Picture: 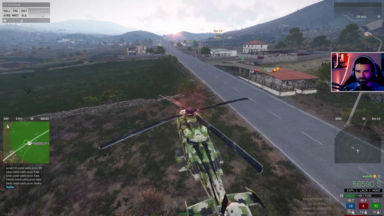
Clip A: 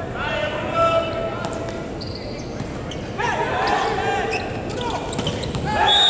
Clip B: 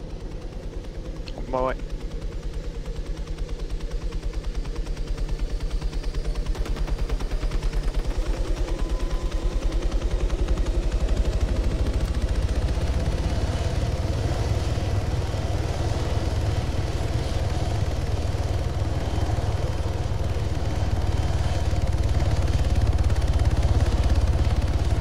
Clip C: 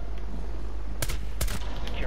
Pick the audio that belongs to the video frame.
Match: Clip B